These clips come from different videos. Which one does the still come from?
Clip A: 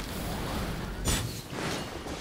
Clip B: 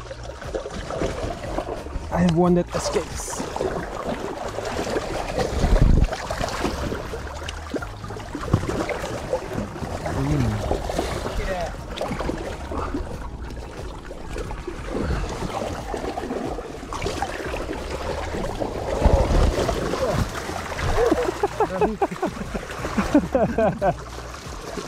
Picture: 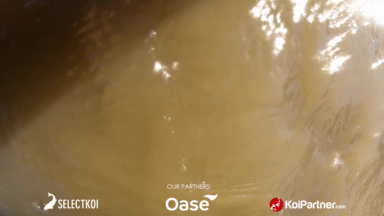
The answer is B